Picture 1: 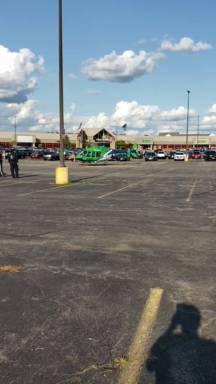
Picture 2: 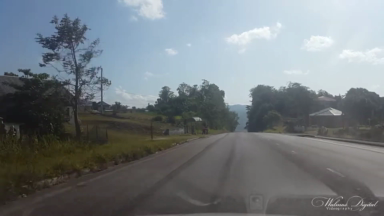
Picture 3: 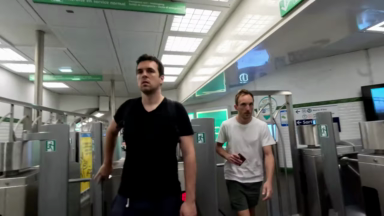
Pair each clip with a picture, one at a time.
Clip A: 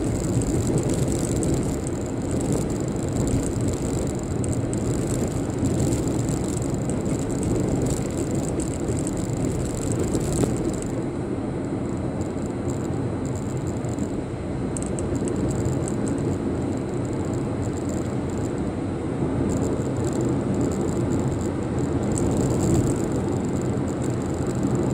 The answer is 2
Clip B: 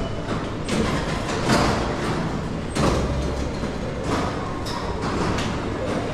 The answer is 3